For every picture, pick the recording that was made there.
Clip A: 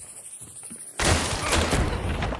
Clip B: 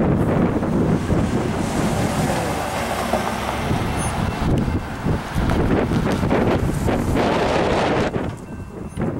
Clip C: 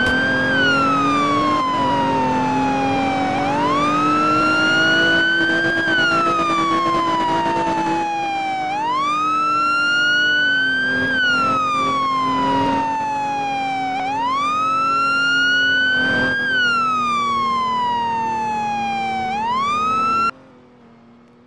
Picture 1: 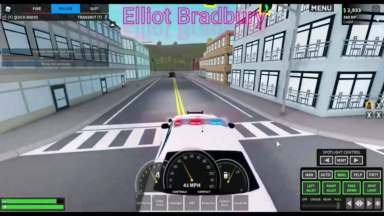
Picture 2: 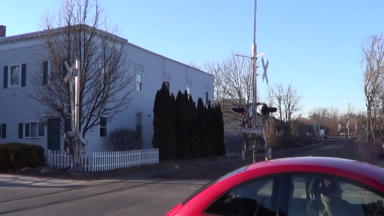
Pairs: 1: C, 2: B